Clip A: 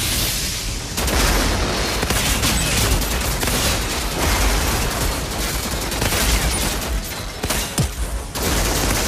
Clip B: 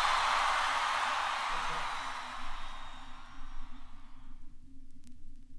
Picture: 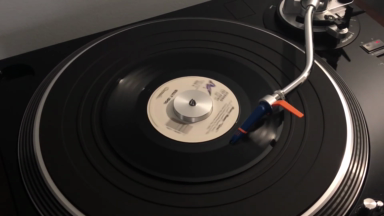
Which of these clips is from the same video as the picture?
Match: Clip B